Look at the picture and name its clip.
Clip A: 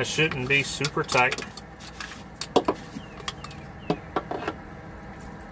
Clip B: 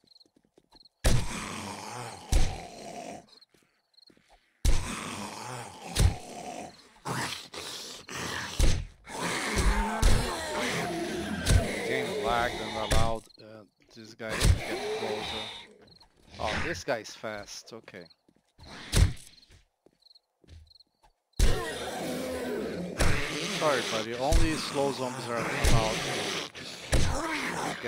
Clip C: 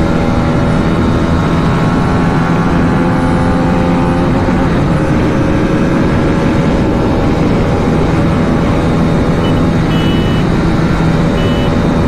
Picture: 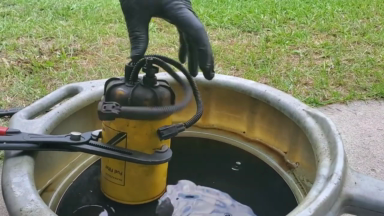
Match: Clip A